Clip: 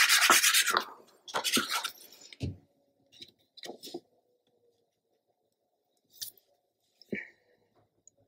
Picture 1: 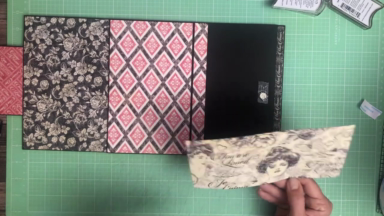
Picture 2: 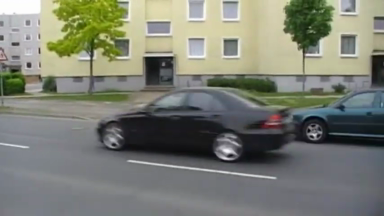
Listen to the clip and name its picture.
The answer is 1